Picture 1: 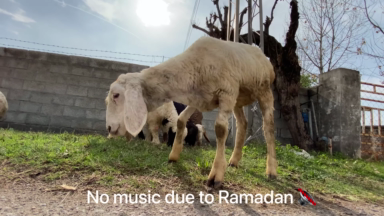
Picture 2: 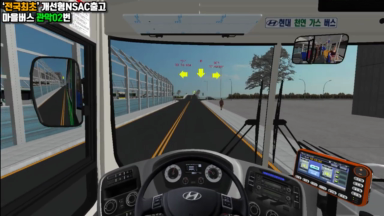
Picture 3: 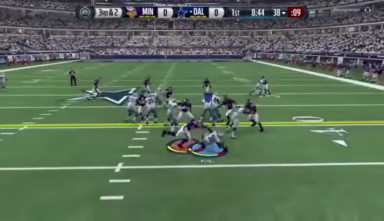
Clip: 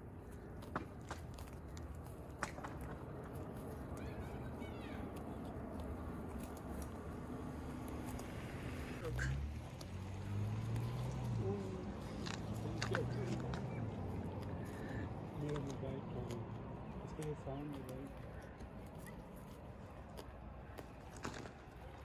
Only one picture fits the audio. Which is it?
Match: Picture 1